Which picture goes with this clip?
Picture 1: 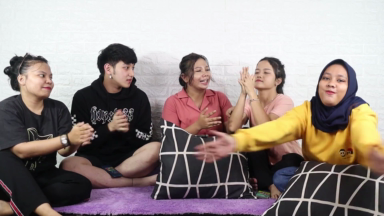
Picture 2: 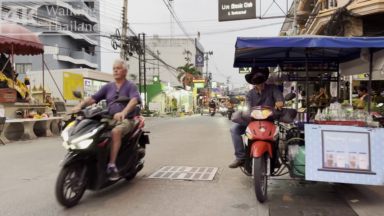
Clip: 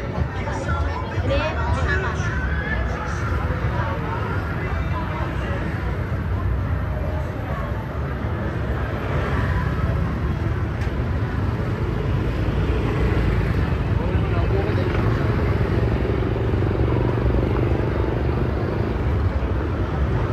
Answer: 2